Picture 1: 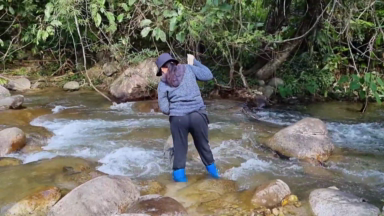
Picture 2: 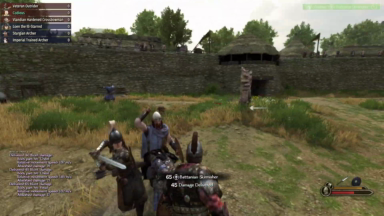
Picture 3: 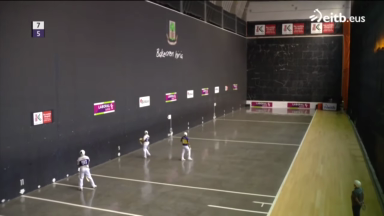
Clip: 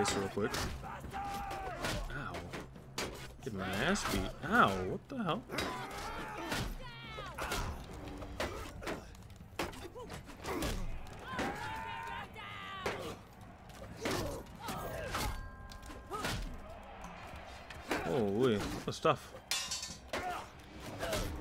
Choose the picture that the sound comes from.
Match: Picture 2